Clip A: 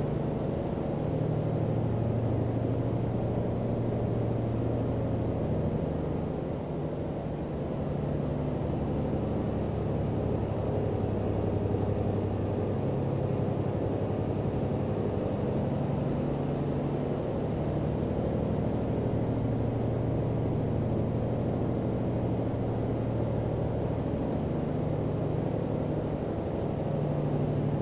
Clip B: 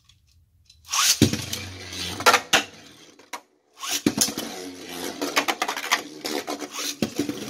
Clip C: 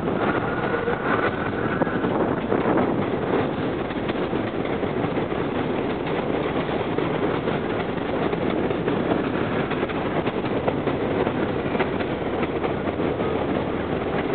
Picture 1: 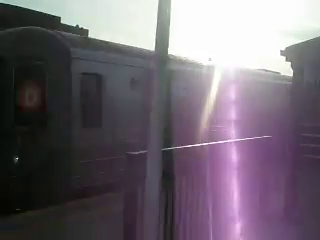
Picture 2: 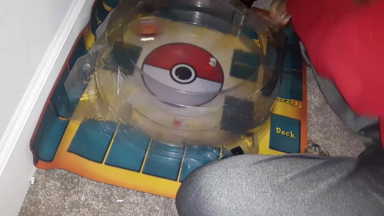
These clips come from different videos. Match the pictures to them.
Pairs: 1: C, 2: B